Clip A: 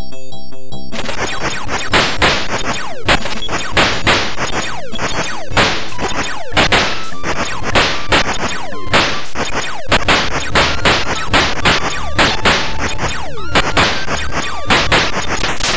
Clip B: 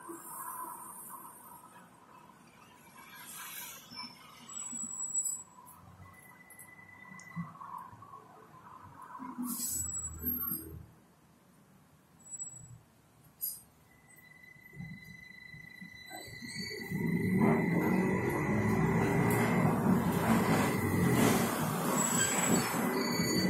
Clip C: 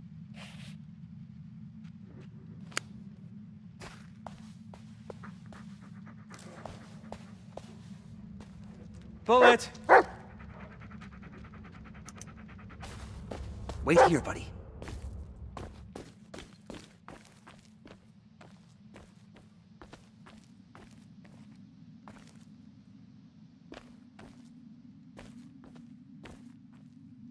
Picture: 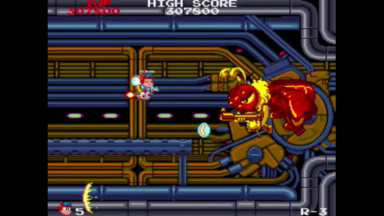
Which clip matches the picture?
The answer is A